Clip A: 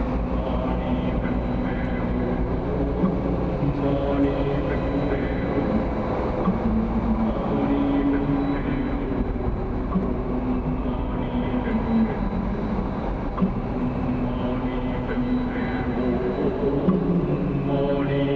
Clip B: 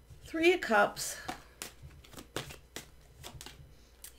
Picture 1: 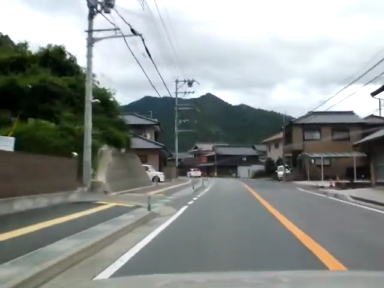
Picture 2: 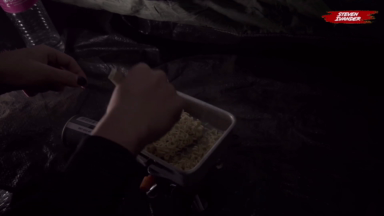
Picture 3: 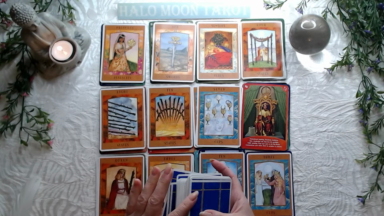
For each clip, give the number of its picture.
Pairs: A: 1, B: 3